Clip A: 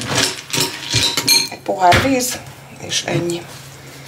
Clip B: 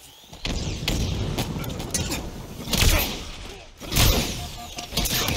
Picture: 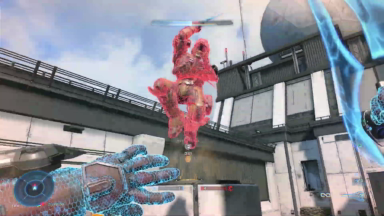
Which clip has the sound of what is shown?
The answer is B